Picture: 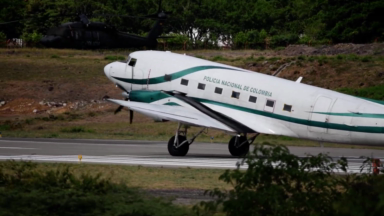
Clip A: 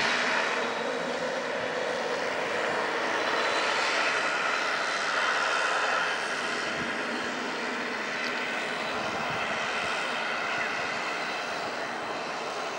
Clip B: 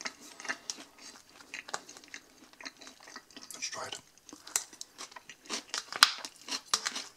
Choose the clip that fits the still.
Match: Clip A